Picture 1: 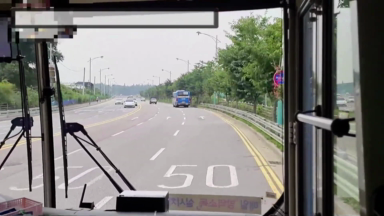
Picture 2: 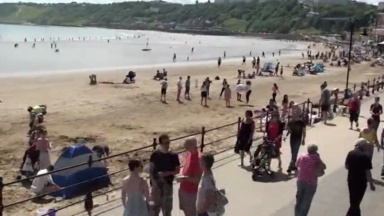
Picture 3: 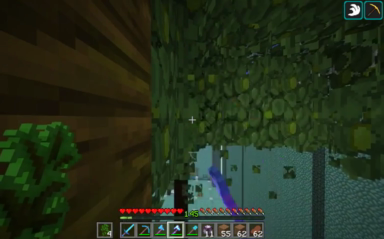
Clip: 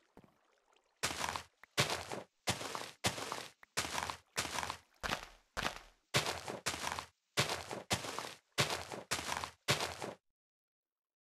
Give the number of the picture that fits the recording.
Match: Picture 3